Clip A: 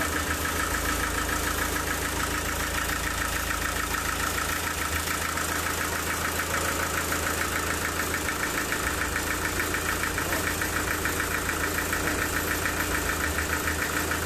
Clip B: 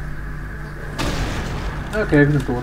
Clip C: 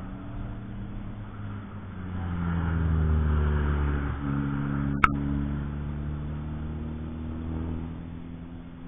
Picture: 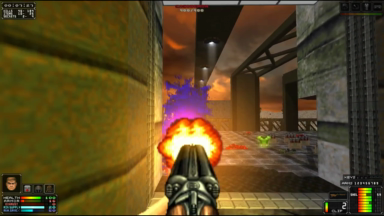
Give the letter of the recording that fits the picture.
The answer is B